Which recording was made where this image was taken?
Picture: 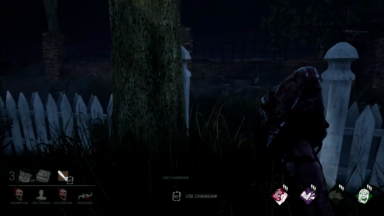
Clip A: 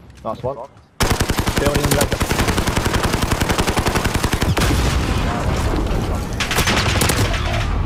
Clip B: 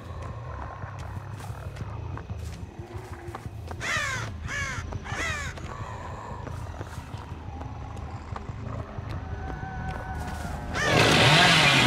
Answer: B